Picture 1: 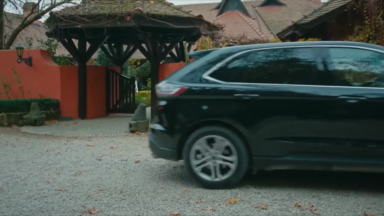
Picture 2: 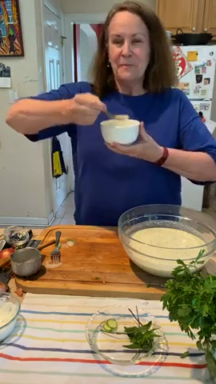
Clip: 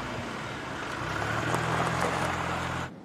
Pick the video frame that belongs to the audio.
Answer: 1